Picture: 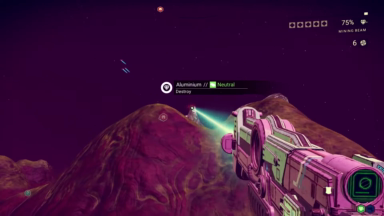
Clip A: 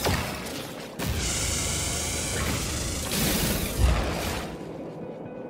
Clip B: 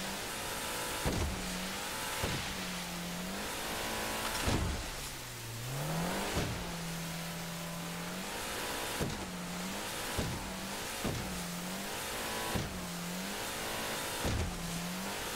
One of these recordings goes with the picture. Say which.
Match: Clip A